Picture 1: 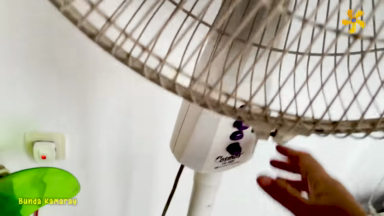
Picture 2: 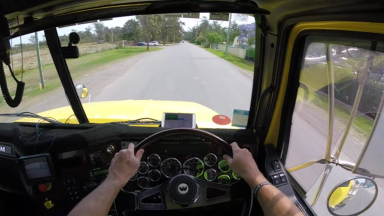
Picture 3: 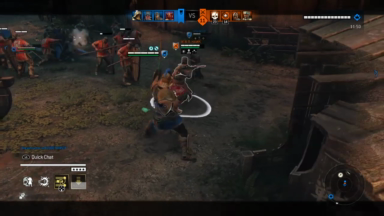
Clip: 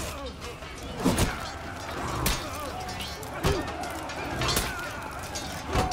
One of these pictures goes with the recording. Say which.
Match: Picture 3